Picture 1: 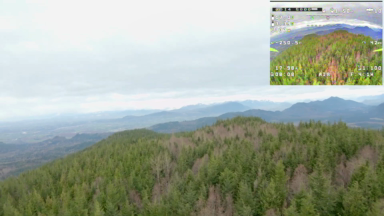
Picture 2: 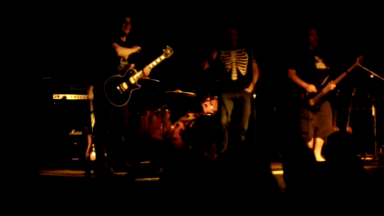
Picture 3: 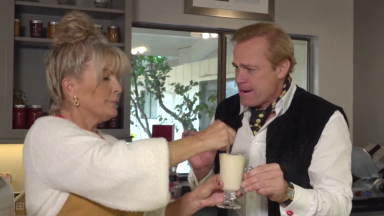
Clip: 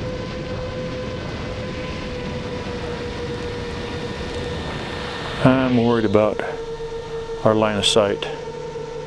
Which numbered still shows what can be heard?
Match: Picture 1